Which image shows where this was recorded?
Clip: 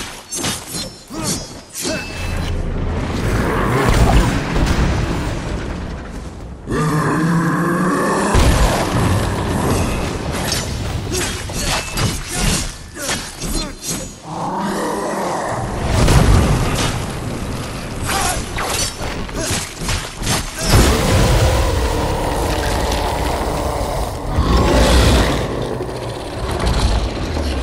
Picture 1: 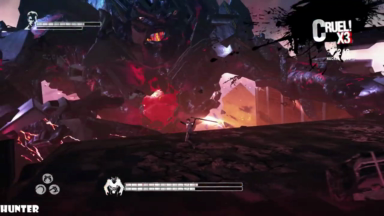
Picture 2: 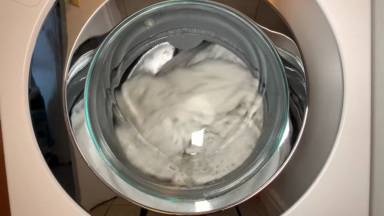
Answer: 1